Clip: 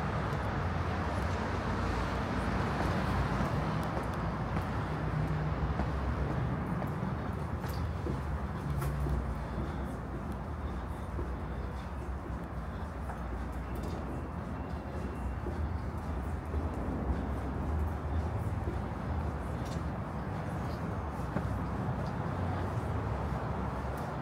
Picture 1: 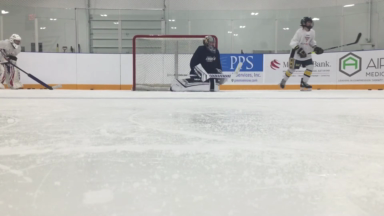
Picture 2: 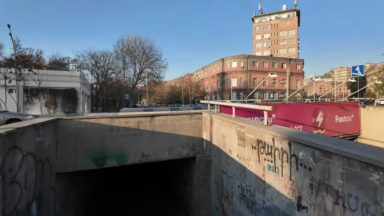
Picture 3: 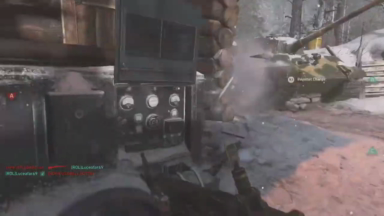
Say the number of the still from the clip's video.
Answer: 2